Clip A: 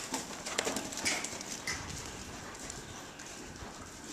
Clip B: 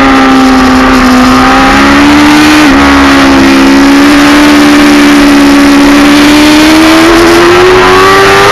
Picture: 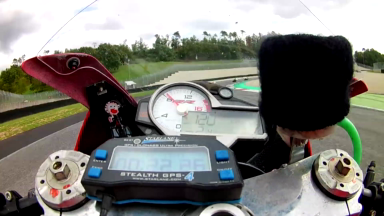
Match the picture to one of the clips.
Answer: B